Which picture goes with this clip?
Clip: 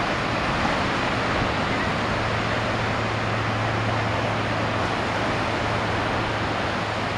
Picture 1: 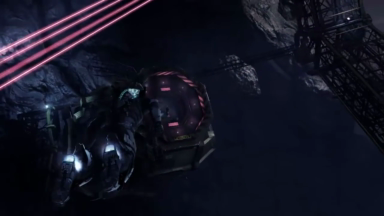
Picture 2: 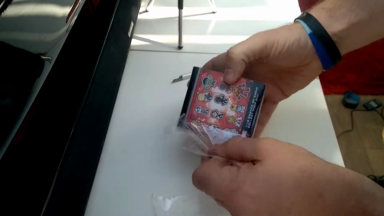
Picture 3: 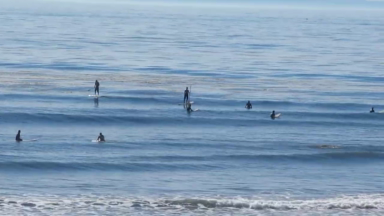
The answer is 3